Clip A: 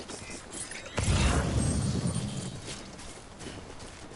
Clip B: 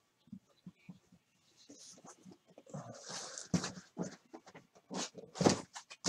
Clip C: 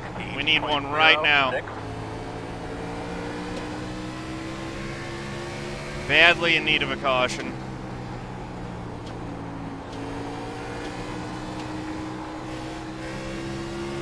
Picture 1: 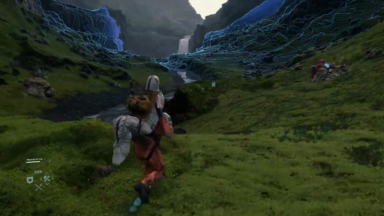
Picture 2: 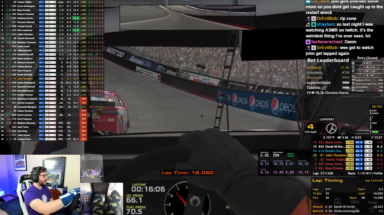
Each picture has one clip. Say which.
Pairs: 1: A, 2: C